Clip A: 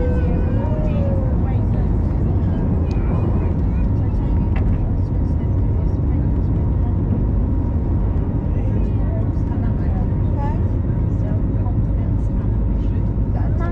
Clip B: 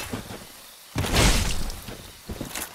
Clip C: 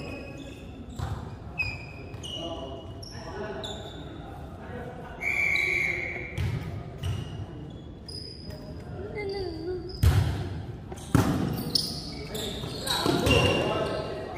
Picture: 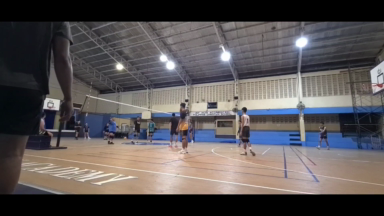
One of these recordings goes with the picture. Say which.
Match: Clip C